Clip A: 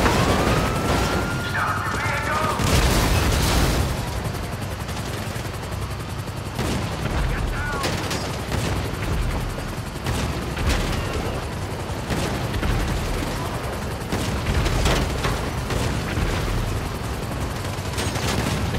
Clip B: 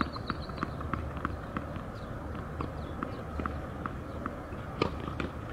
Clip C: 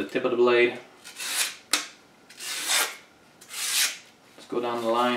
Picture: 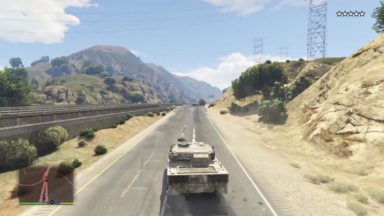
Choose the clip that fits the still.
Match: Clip A